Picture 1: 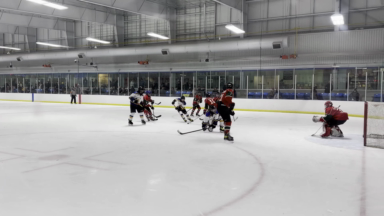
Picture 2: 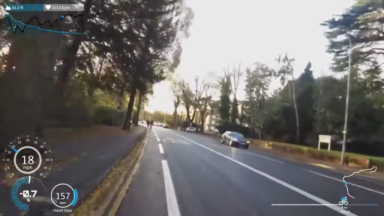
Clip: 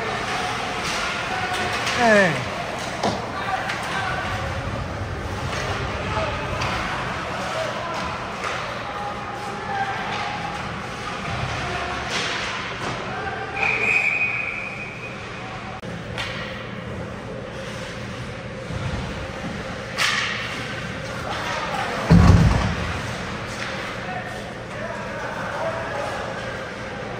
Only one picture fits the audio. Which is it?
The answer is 1